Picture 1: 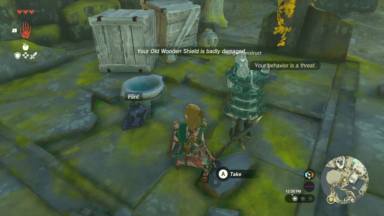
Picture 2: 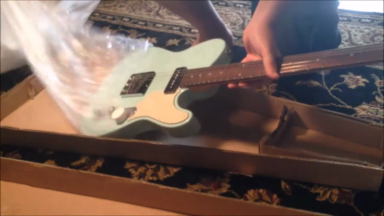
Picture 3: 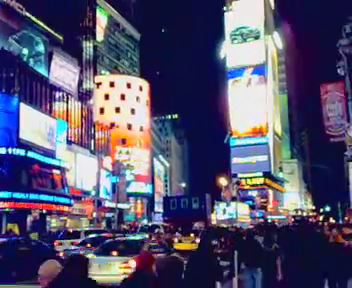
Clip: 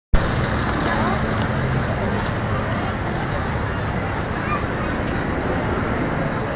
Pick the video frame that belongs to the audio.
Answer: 3